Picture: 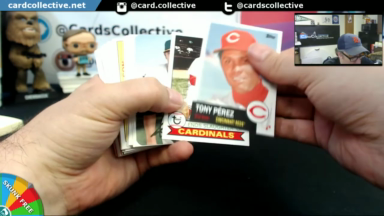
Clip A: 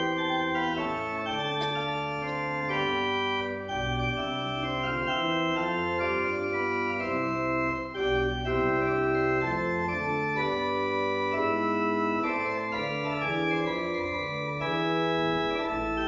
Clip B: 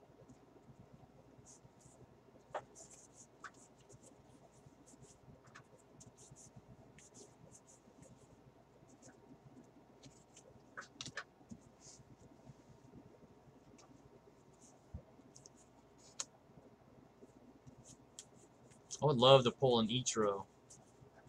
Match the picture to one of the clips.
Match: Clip B